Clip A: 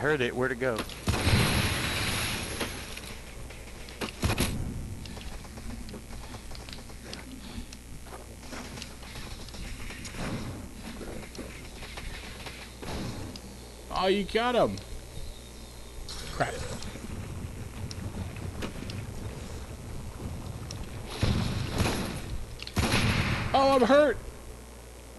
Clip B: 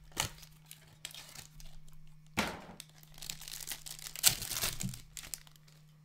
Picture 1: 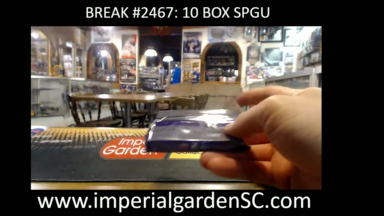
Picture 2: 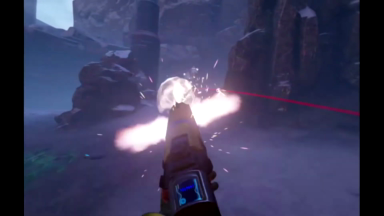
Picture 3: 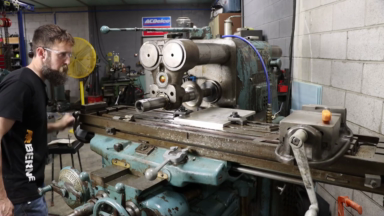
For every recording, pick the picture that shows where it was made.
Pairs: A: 2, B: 1